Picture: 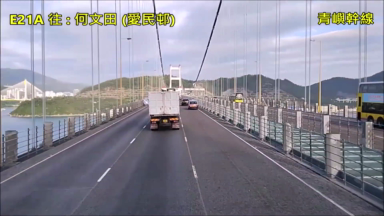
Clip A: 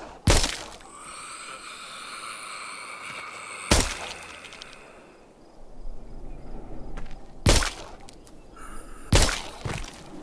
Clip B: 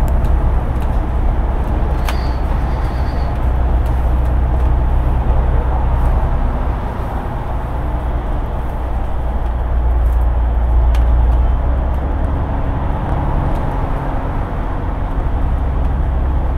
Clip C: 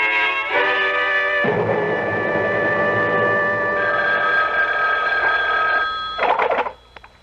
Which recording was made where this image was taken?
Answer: B